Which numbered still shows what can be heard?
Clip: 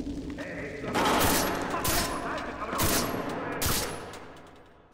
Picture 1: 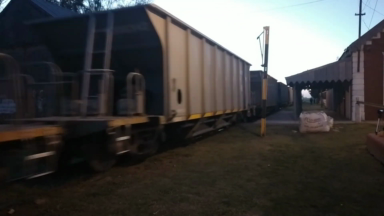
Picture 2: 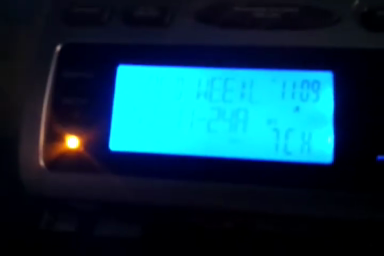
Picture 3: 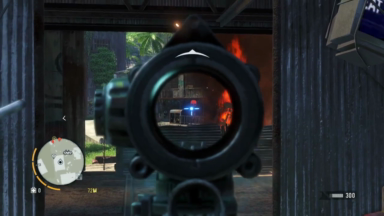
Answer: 3